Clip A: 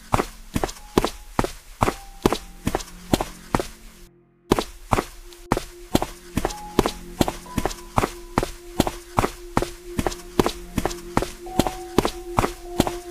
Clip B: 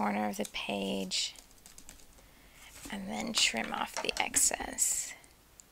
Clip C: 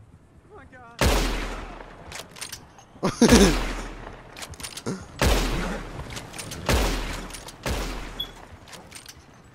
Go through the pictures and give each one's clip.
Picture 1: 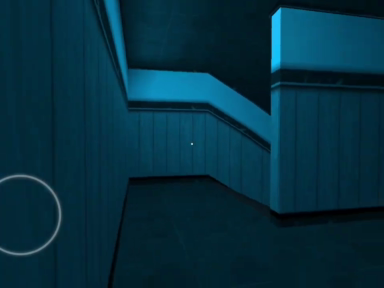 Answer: A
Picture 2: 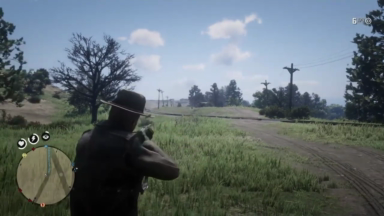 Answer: C